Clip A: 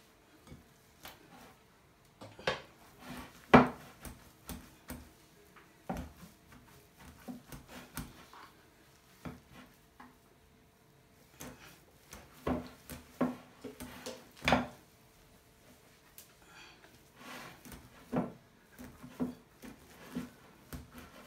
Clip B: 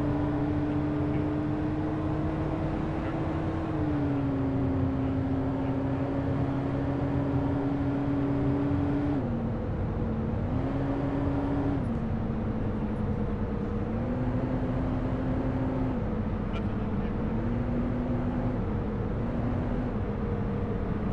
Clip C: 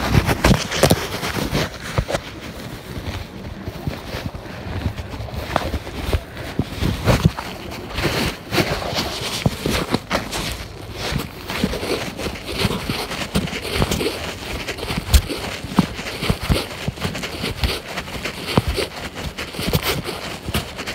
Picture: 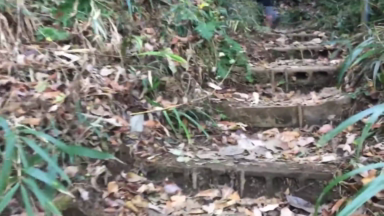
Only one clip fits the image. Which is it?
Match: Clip C